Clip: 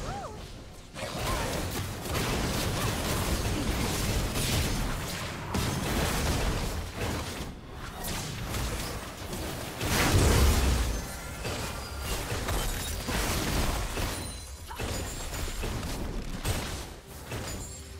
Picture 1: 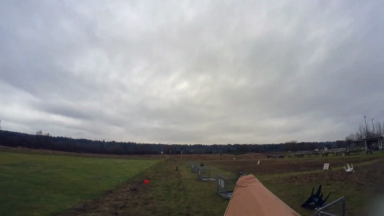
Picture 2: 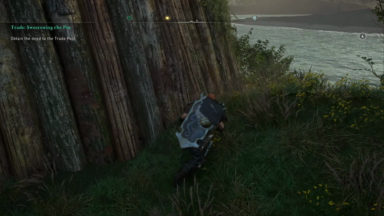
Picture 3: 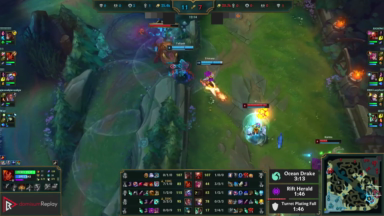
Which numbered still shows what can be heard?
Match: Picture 3